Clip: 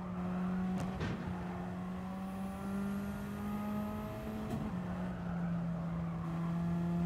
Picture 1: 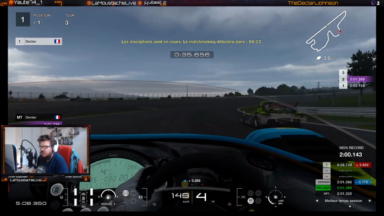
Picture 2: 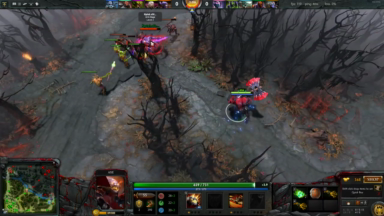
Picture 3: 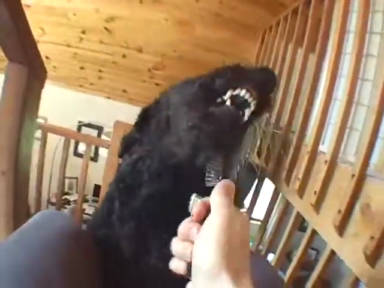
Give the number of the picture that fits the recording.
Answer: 1